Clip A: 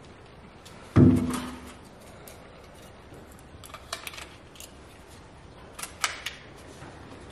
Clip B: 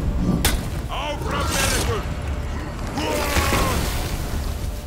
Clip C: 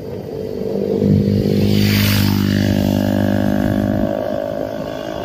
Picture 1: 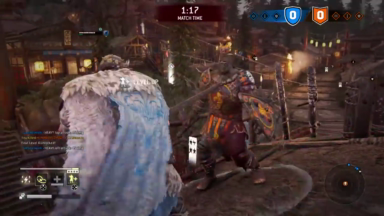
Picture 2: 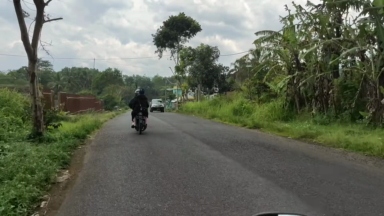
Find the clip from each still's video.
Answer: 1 B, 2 C